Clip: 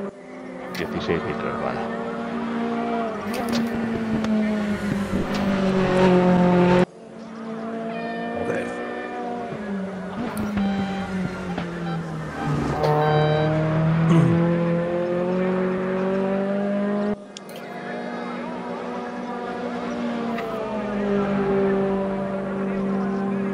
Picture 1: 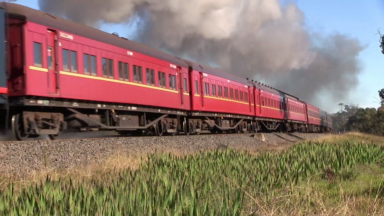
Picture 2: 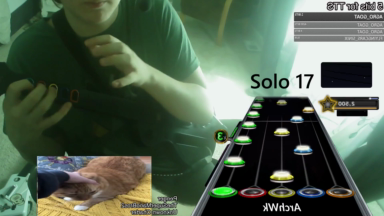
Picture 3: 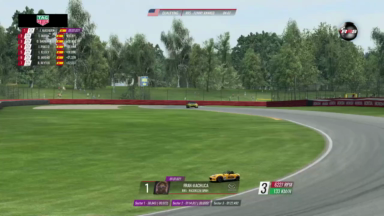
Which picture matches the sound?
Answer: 3